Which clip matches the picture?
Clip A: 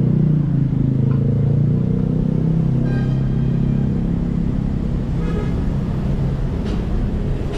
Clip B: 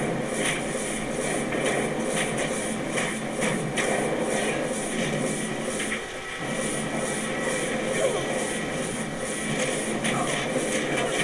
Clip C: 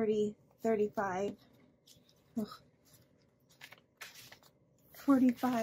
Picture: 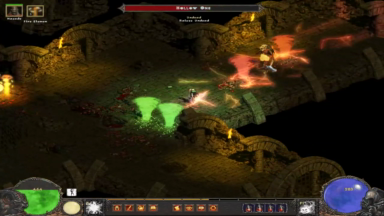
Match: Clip B